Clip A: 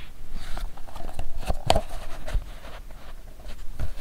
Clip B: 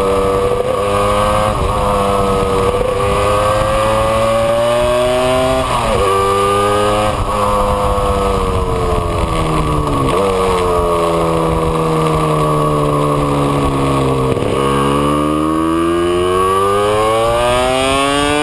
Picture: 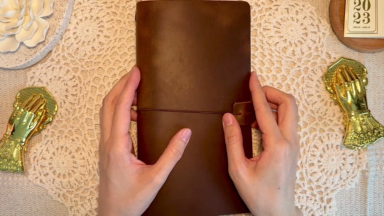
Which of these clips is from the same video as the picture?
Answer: A